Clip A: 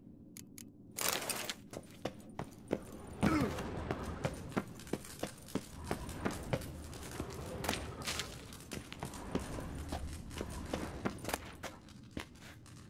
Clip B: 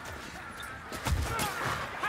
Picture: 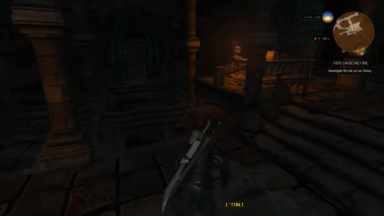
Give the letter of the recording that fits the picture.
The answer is A